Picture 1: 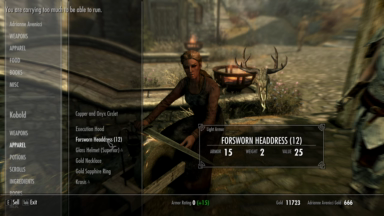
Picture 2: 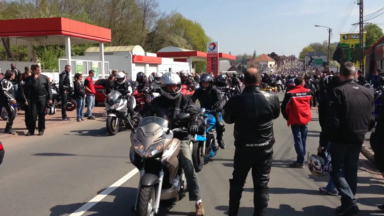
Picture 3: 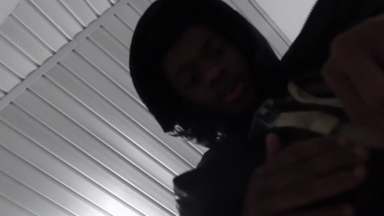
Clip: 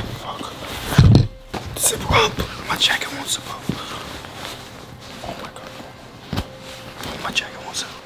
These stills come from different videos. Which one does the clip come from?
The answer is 3